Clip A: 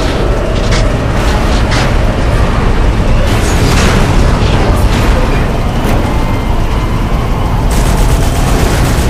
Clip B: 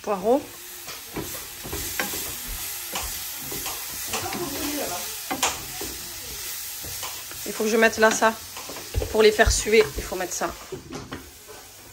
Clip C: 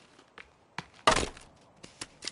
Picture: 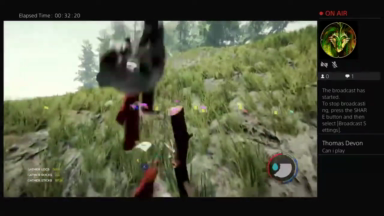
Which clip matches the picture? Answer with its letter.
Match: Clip C